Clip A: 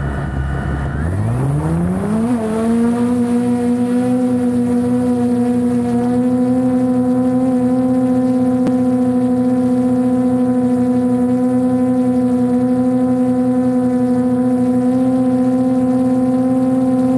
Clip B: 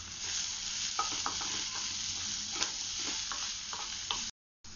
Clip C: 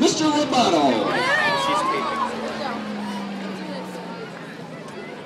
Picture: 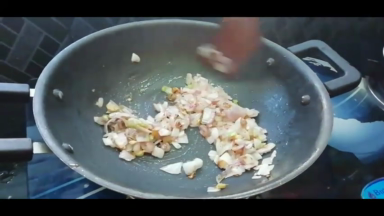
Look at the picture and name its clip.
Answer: B